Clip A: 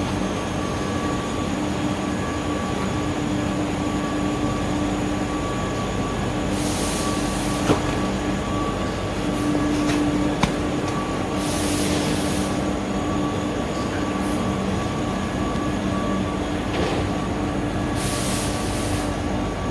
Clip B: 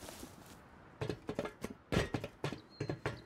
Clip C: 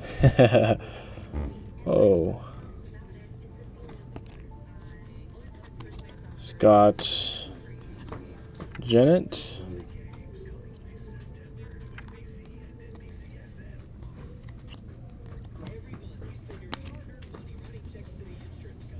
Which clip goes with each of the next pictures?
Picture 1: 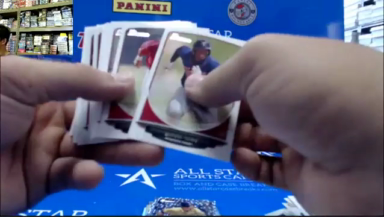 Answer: C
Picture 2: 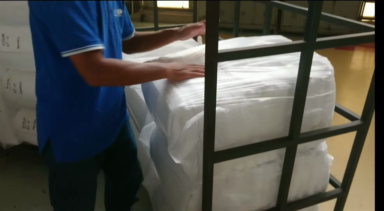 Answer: A